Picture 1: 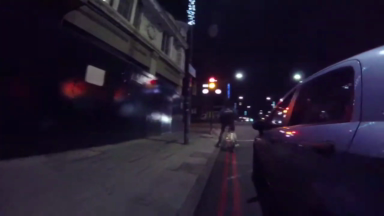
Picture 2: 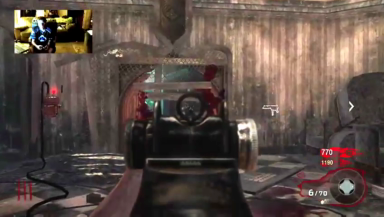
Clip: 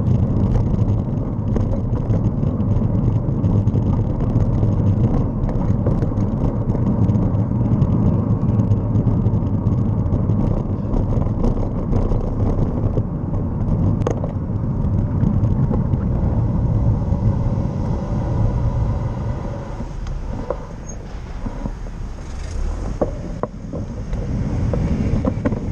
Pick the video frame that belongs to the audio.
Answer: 1